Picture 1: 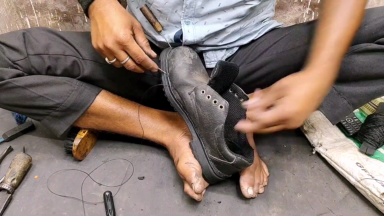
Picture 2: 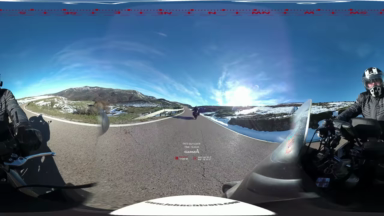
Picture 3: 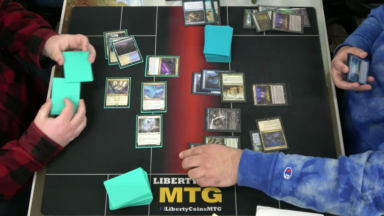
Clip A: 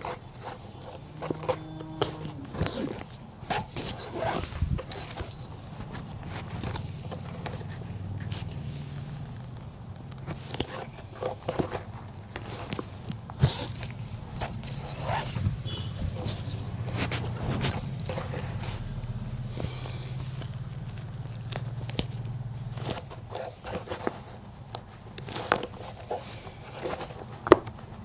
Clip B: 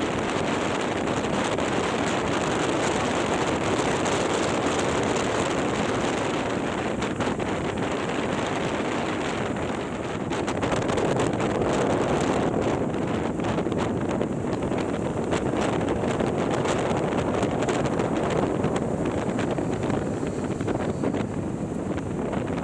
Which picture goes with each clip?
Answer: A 1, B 2